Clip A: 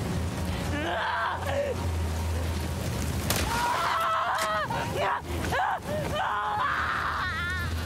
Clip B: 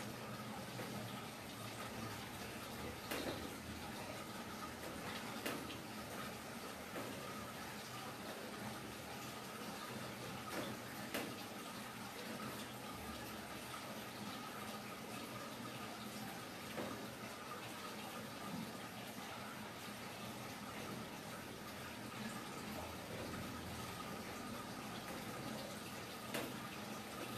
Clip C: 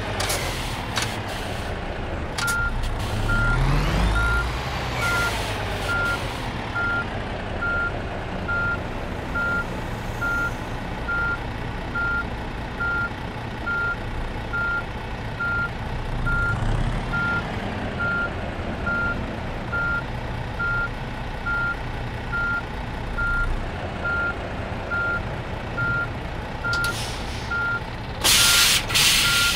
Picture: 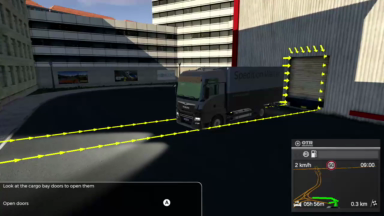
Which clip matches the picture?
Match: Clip C